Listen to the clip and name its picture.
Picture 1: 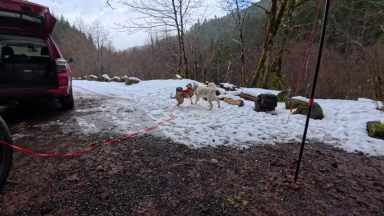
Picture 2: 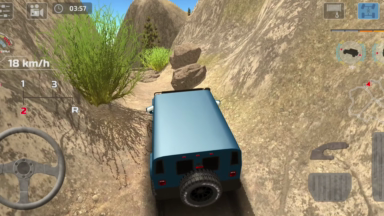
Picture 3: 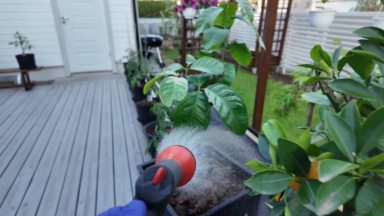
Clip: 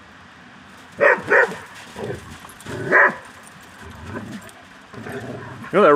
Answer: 1